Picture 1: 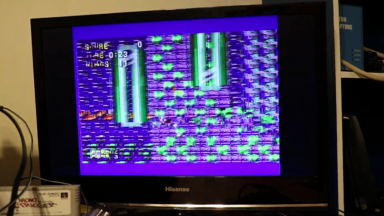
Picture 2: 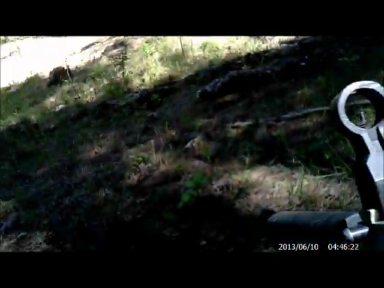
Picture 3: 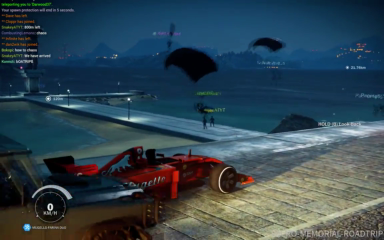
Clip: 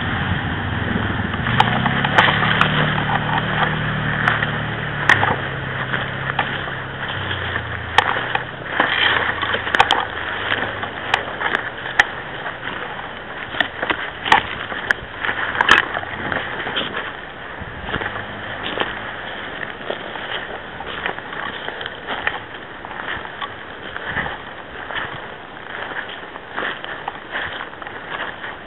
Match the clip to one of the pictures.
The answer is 2